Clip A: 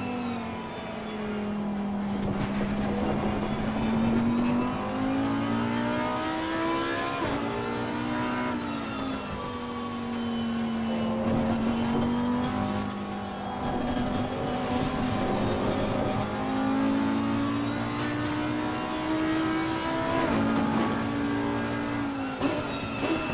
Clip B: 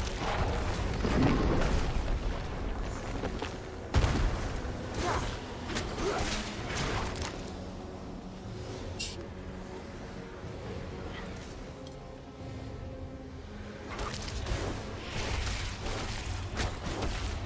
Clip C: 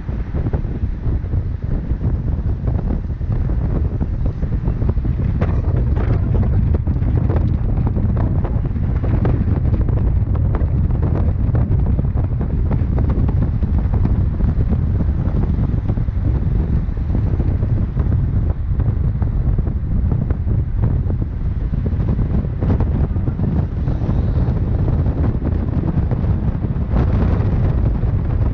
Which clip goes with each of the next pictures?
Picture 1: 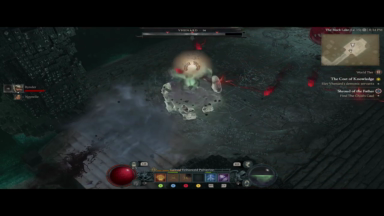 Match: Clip B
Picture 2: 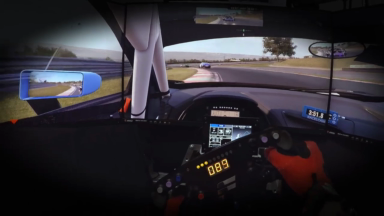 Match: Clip A